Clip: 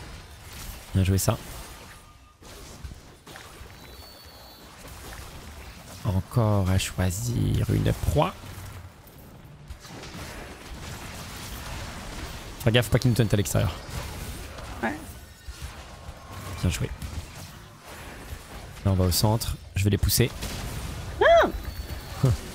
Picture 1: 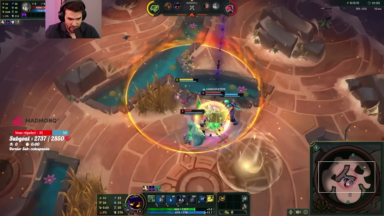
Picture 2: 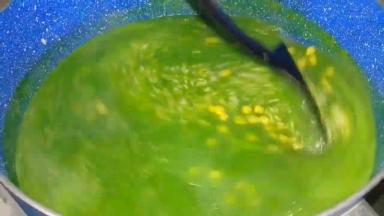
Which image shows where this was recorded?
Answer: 1